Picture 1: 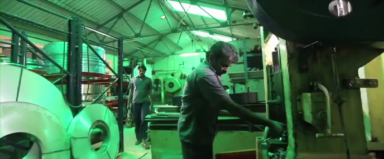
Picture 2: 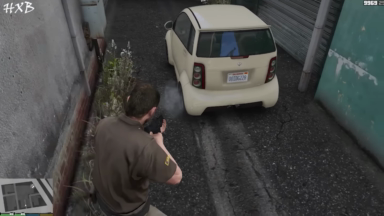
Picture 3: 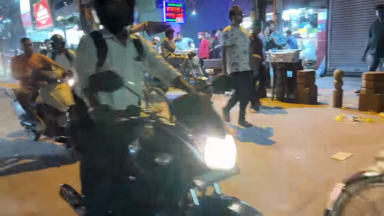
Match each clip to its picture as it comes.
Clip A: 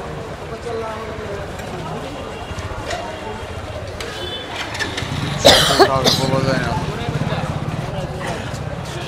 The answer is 3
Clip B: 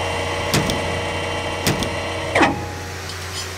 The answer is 1